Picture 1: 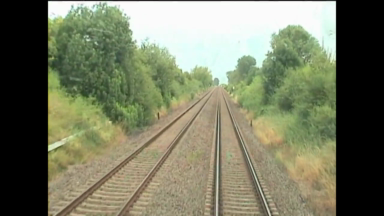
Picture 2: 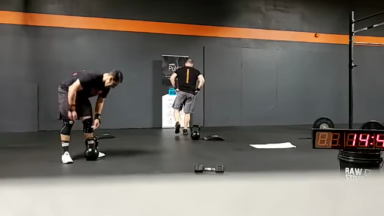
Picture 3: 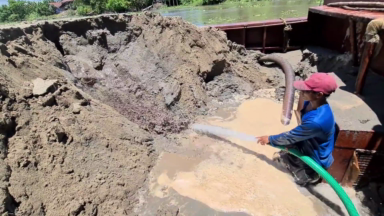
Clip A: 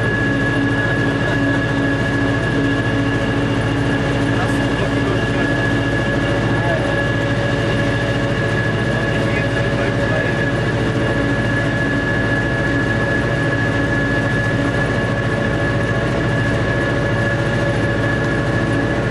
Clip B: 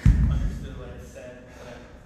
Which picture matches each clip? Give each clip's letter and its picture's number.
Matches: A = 1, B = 2